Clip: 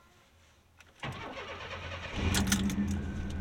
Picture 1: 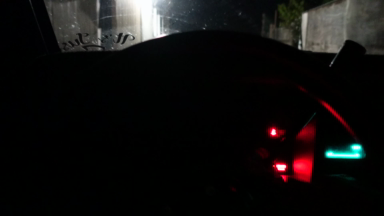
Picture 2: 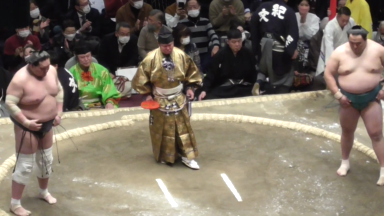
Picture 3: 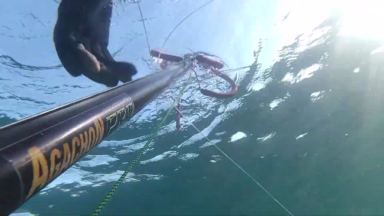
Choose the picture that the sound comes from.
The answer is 1